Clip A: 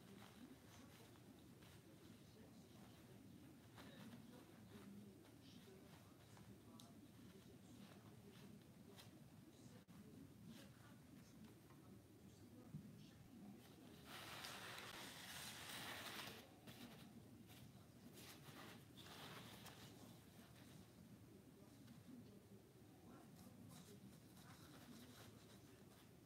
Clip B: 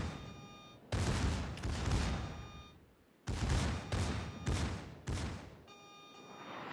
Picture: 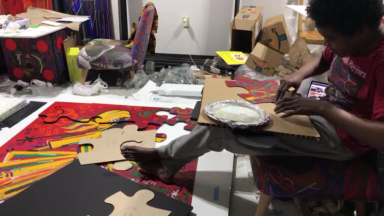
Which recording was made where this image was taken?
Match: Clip A